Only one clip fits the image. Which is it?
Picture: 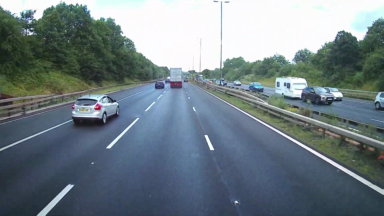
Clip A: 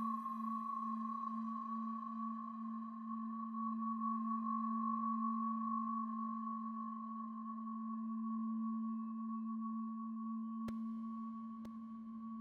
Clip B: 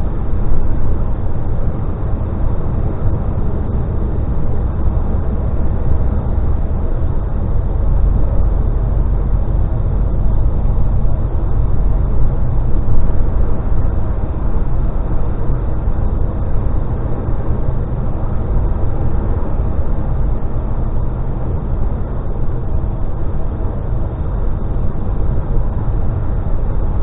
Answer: B